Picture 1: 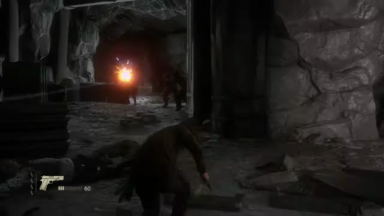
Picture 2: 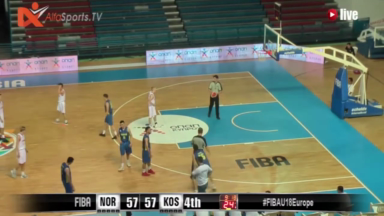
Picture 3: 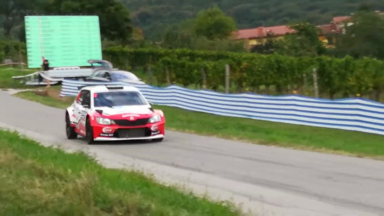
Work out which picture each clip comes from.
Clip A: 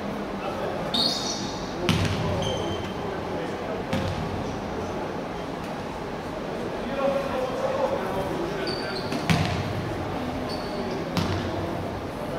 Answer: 2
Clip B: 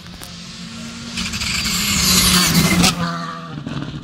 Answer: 3